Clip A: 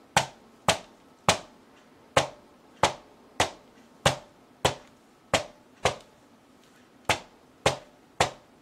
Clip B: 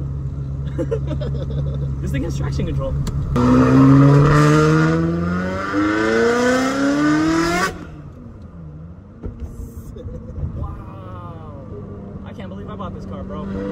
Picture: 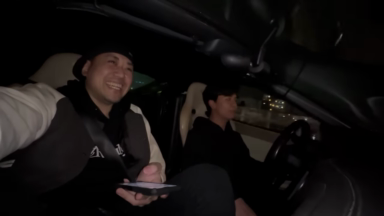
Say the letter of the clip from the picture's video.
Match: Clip B